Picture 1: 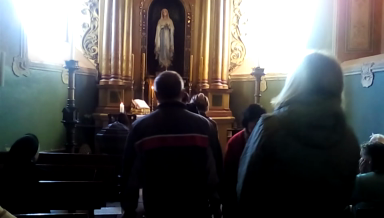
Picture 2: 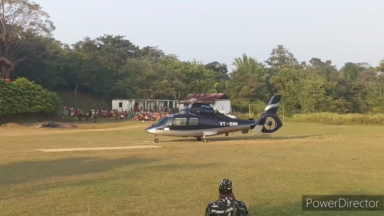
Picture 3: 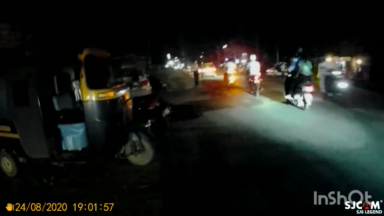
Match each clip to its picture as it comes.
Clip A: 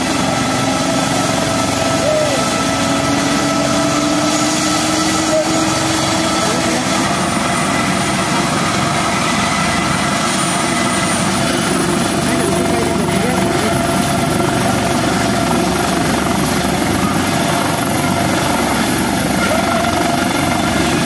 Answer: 2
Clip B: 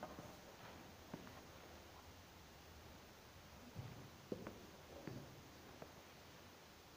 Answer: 1